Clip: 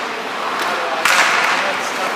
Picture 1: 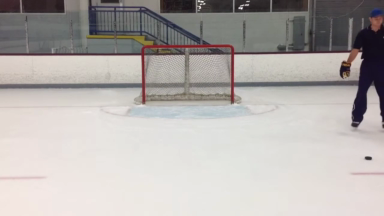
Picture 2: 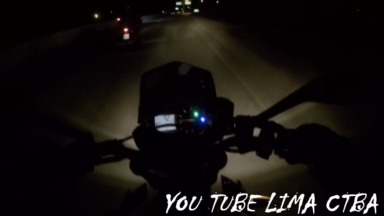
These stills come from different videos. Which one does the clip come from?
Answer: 1